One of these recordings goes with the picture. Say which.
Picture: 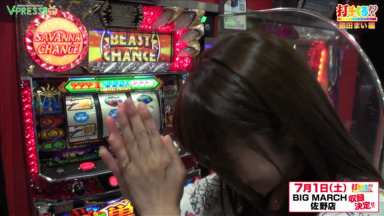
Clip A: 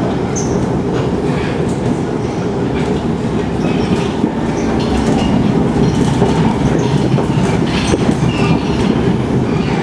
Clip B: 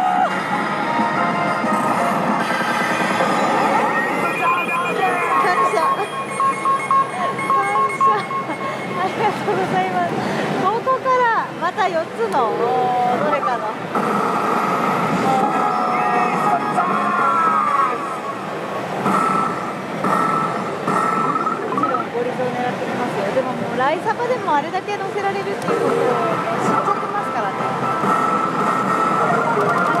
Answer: B